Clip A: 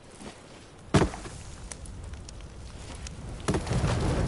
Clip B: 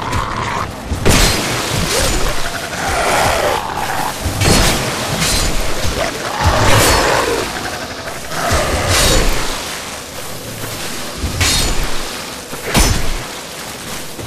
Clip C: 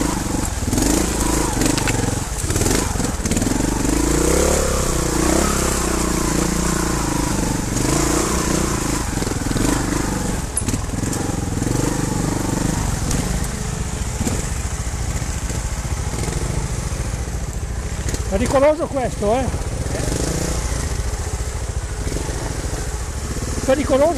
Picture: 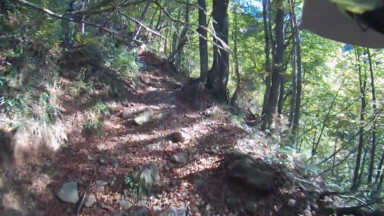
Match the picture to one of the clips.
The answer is C